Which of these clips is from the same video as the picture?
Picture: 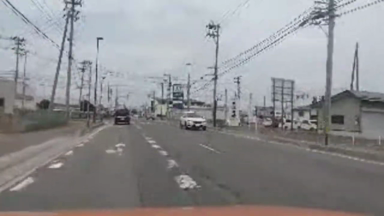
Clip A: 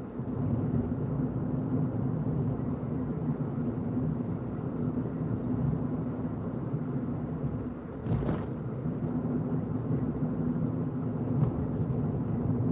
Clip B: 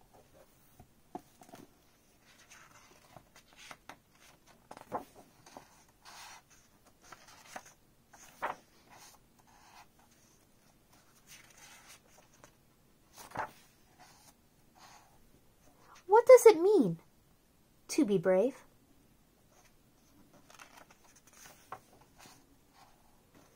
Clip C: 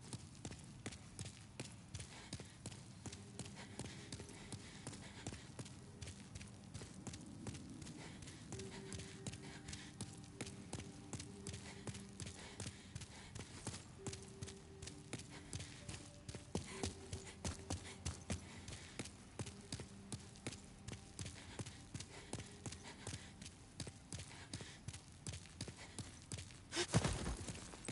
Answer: A